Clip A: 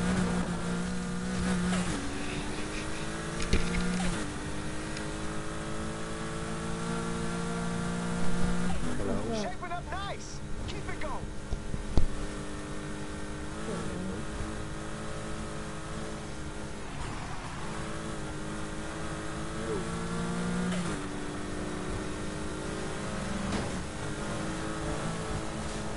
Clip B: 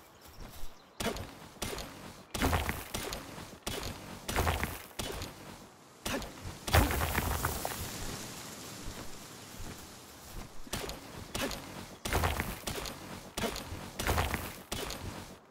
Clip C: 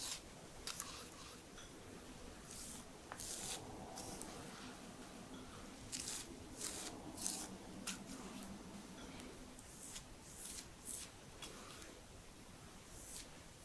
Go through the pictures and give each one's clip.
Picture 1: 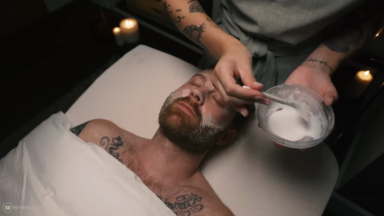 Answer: C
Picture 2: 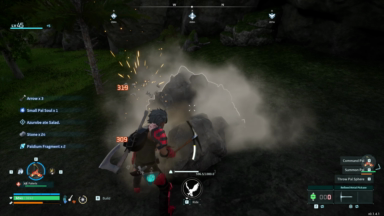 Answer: B